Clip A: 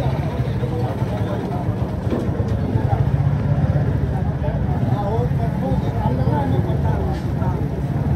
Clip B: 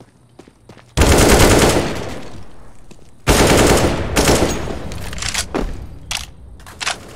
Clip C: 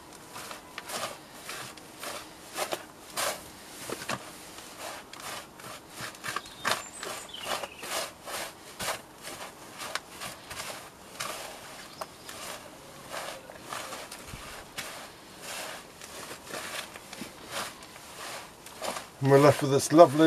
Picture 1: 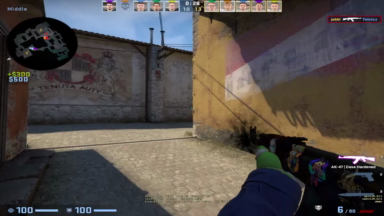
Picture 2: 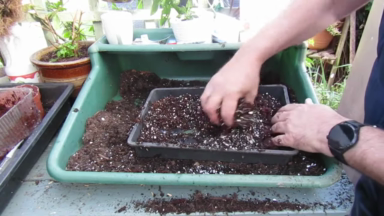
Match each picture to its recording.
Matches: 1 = B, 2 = C